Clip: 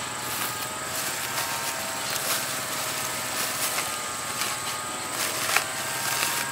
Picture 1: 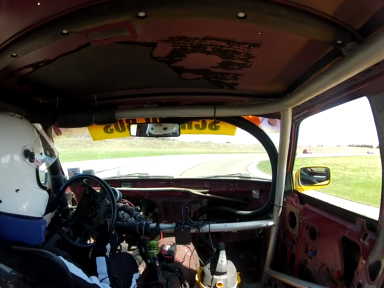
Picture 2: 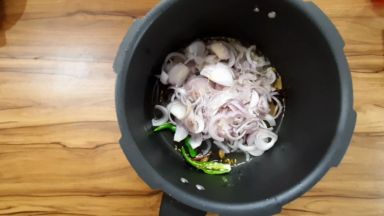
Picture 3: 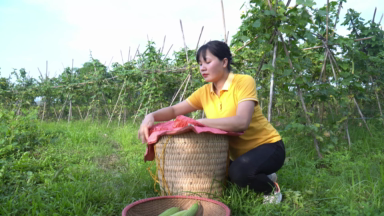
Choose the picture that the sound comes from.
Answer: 3